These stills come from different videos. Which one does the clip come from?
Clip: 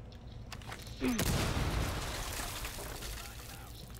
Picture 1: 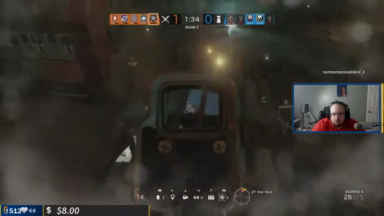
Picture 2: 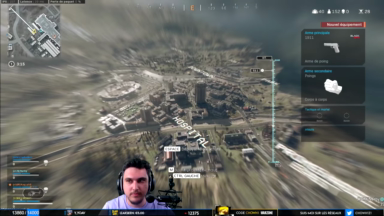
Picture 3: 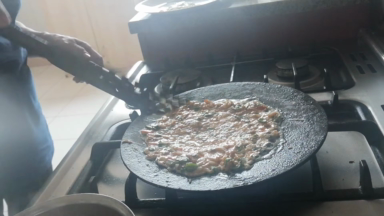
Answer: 1